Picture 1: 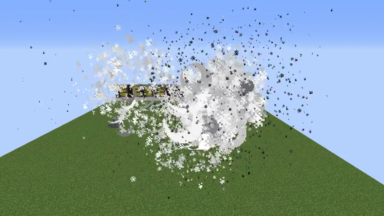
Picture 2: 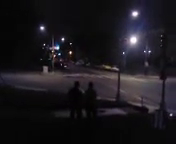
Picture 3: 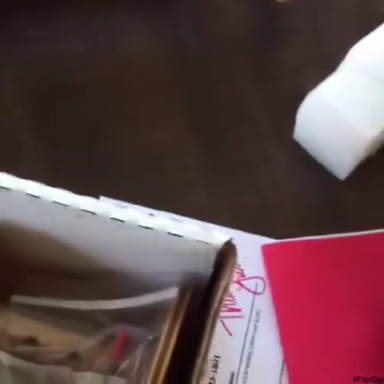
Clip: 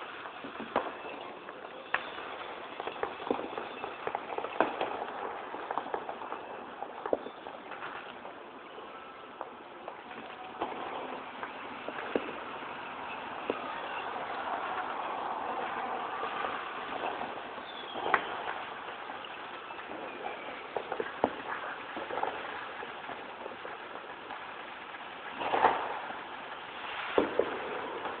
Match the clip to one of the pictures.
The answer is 2